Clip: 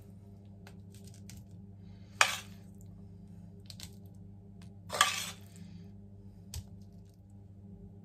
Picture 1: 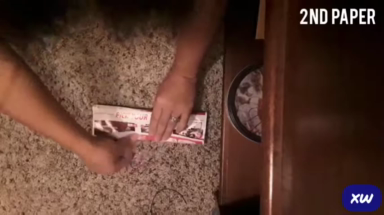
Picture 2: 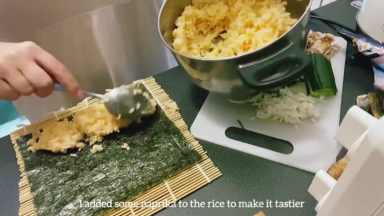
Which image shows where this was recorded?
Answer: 2